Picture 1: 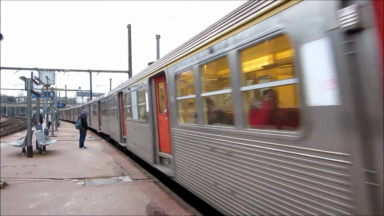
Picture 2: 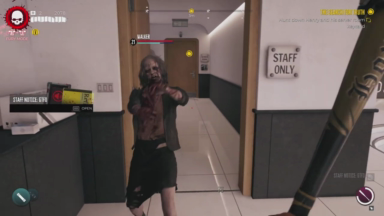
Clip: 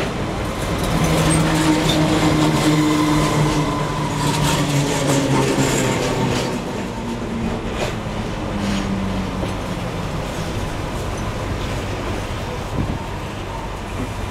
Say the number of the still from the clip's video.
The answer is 1